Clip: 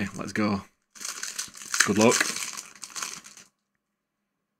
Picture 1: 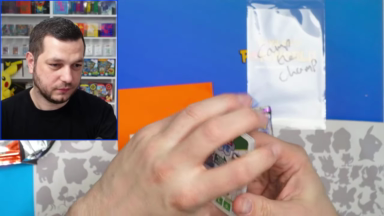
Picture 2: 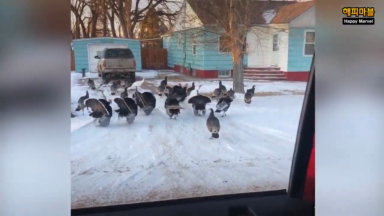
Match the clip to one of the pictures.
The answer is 1